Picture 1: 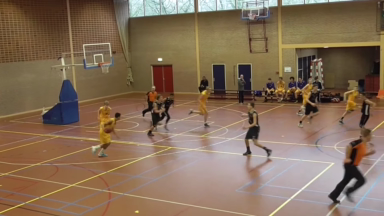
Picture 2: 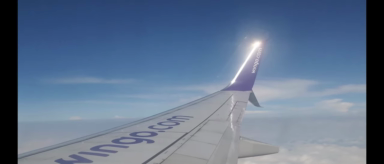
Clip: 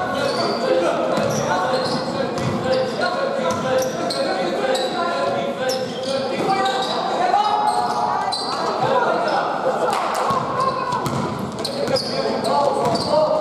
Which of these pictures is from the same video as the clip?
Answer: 1